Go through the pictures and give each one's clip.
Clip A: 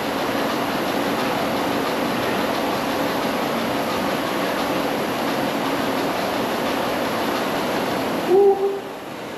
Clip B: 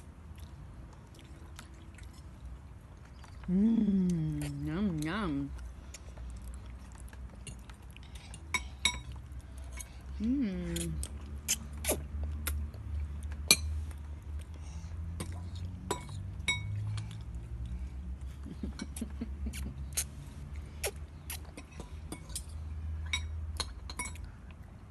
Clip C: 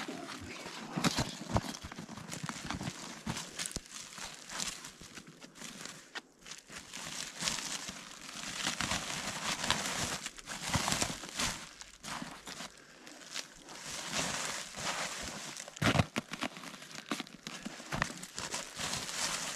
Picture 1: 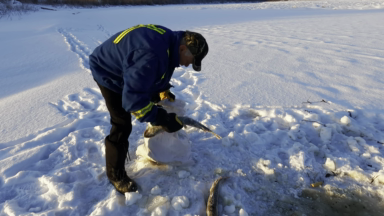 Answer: C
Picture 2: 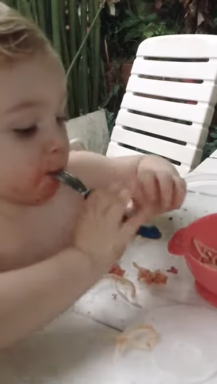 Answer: B